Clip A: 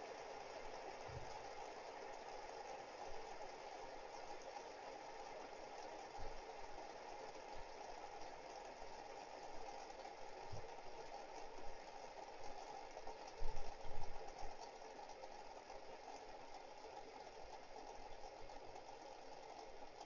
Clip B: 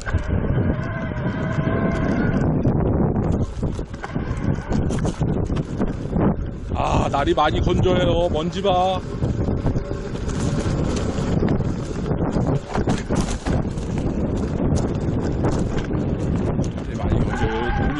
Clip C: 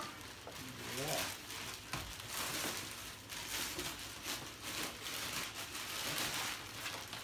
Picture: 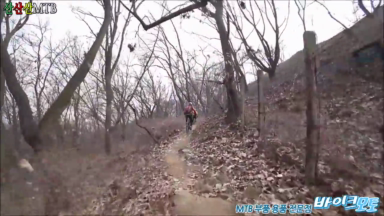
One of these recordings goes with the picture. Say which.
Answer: B